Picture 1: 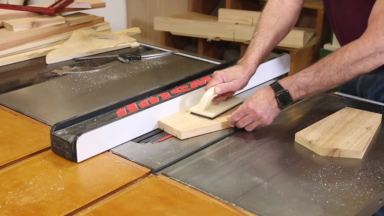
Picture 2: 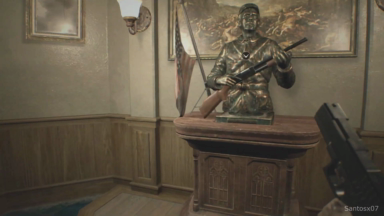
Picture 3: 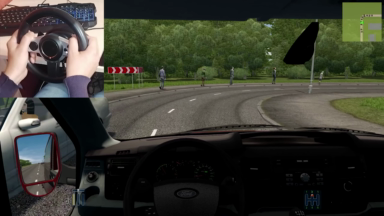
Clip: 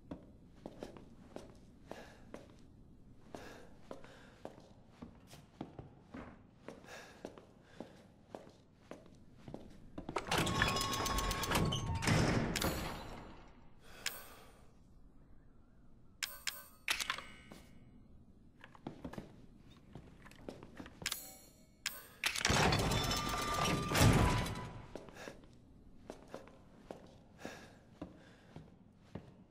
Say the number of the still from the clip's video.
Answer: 2